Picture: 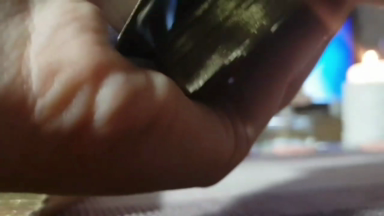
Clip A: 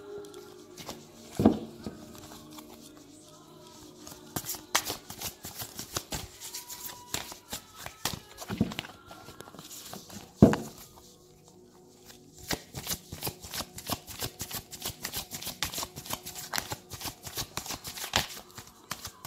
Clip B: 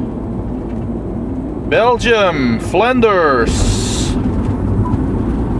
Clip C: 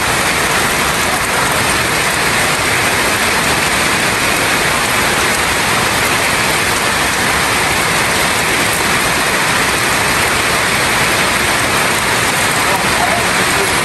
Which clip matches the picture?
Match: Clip A